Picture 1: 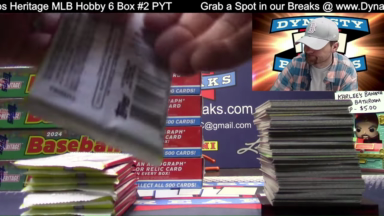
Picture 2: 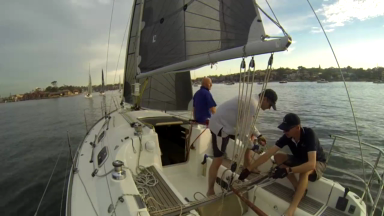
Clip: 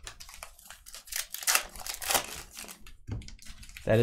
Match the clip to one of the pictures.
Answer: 1